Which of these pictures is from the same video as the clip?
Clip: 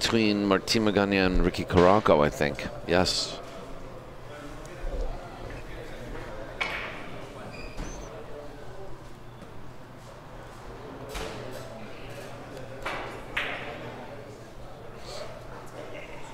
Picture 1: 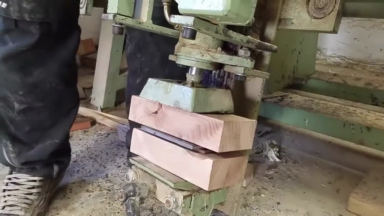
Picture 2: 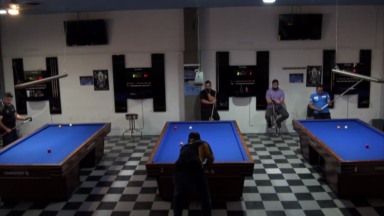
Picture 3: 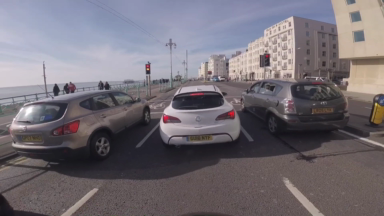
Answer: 2